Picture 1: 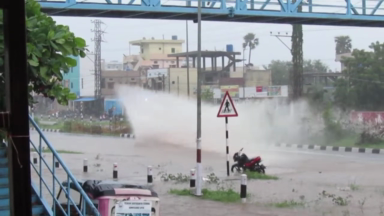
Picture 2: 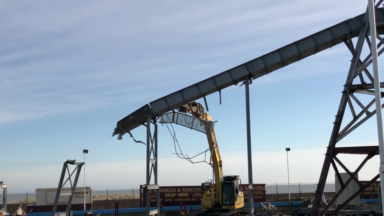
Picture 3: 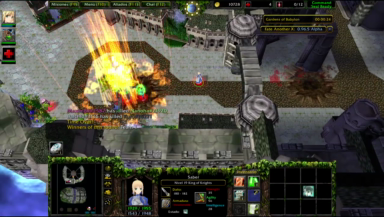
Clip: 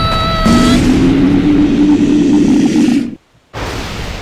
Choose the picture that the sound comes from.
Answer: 3